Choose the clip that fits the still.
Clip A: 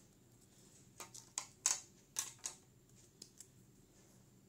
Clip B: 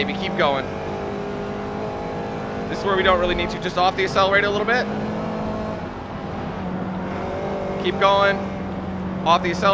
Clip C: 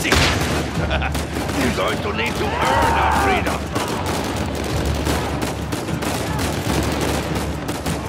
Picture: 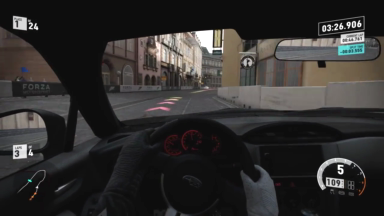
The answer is B